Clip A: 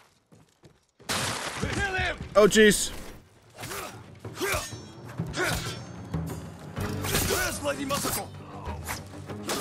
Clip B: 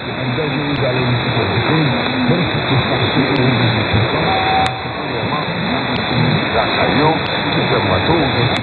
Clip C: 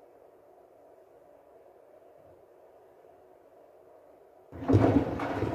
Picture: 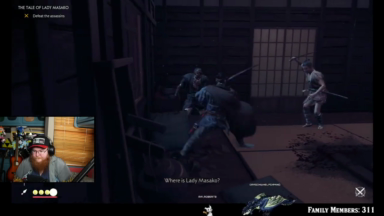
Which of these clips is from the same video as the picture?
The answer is A